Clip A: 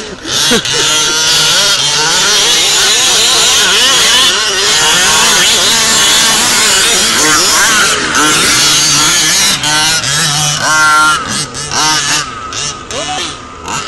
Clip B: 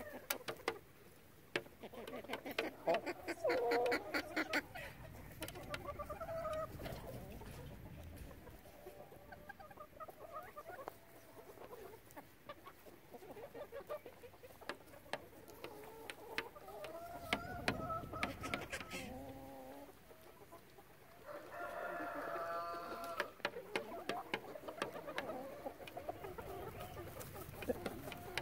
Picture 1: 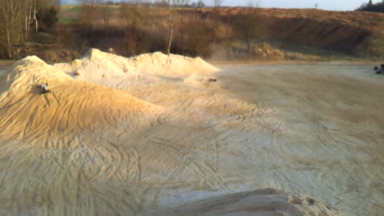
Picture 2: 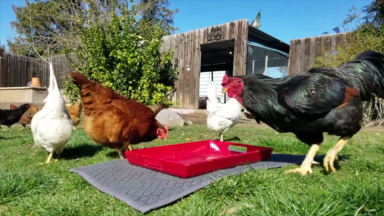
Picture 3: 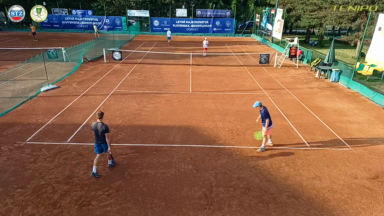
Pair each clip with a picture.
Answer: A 1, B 2